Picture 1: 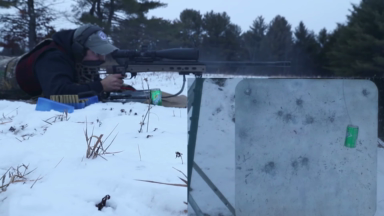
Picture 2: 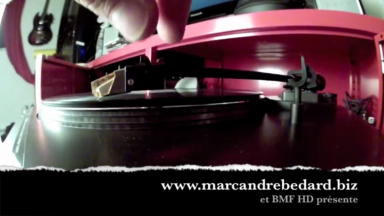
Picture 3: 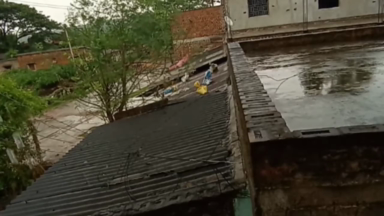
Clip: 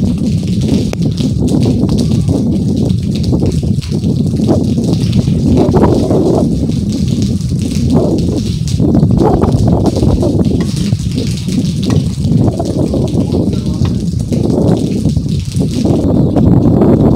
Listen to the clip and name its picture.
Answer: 3